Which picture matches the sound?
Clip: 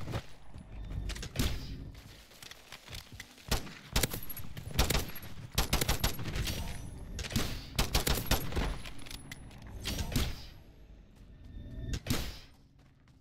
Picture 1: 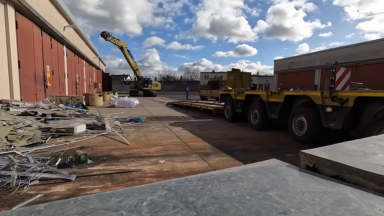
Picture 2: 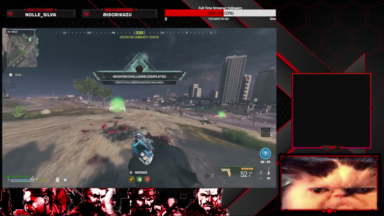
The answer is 2